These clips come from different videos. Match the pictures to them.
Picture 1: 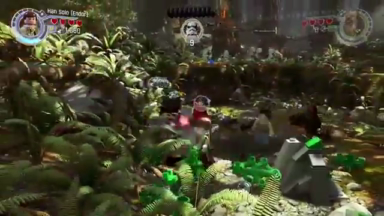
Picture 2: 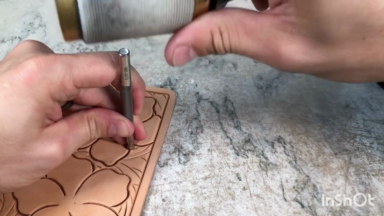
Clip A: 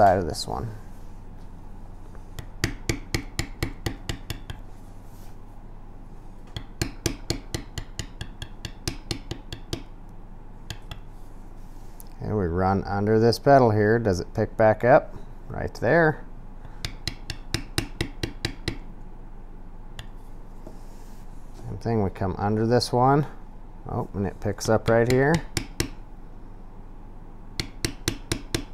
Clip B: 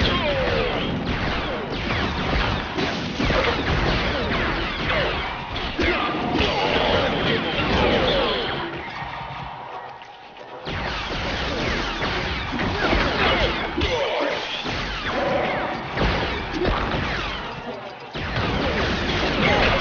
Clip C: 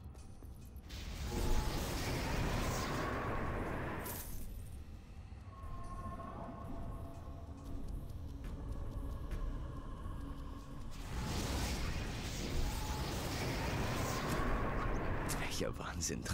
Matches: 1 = B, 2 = A